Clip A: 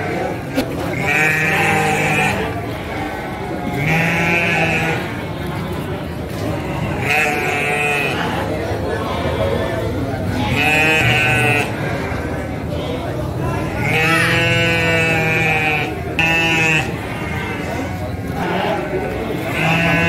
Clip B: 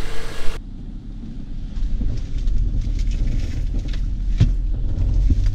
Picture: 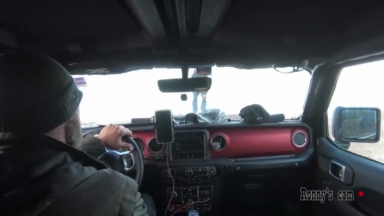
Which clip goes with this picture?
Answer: B